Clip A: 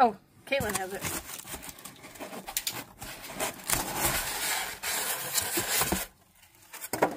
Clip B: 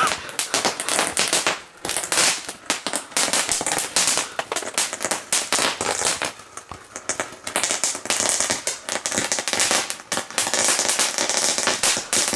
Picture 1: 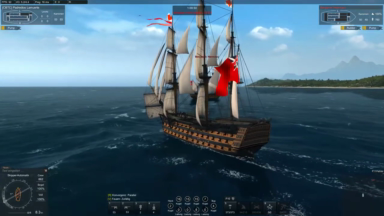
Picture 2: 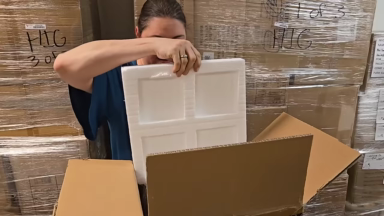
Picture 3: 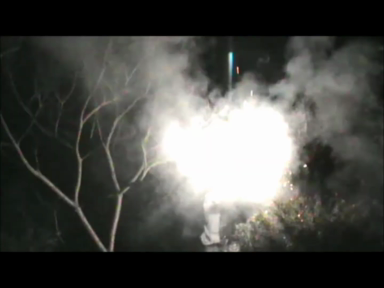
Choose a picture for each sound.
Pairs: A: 2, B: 3